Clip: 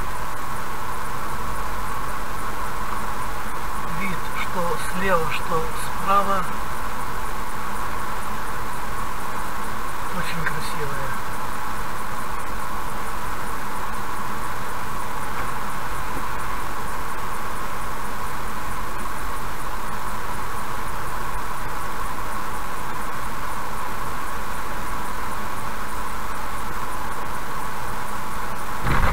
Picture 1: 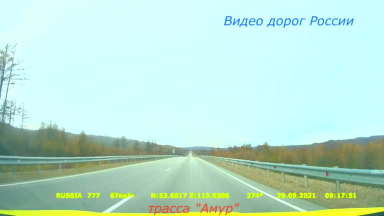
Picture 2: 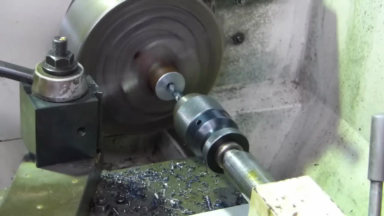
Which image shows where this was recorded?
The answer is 1